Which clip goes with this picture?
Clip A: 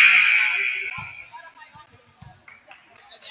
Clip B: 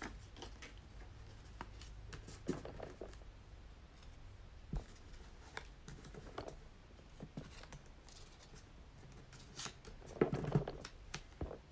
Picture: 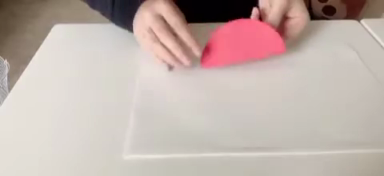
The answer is B